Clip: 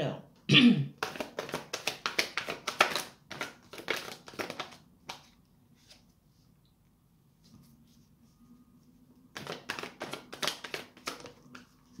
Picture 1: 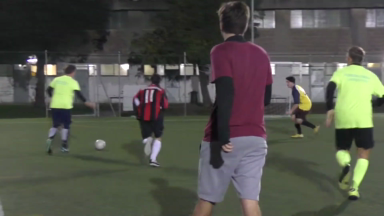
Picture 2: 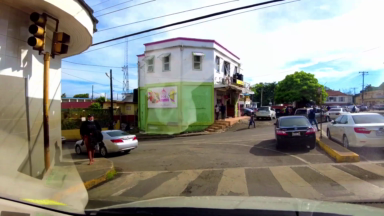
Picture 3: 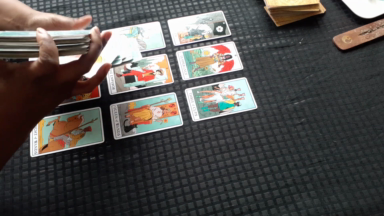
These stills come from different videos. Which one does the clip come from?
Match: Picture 3